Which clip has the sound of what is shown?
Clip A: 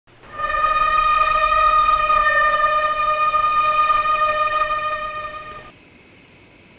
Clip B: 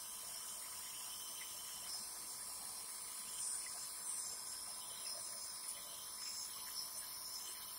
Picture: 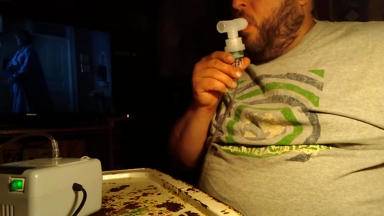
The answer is B